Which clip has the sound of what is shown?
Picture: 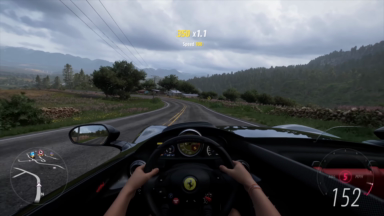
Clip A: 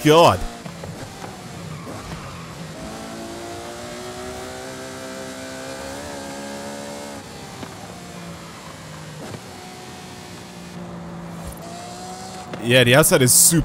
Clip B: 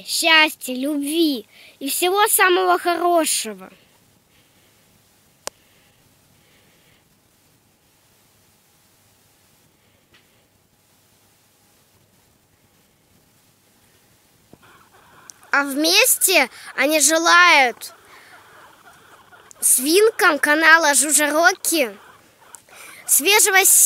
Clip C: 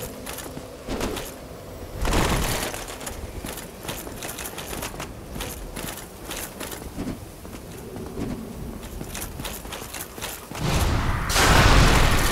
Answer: A